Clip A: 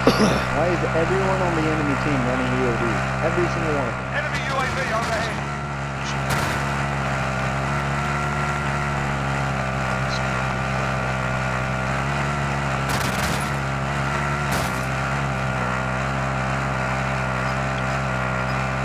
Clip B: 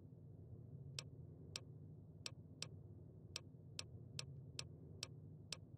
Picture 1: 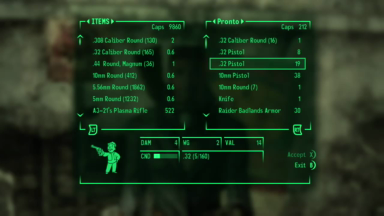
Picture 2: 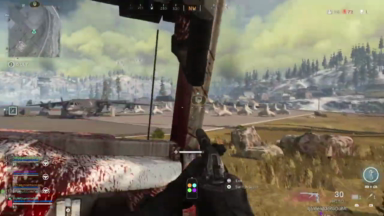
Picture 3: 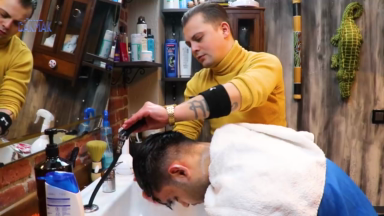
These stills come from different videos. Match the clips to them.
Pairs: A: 2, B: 1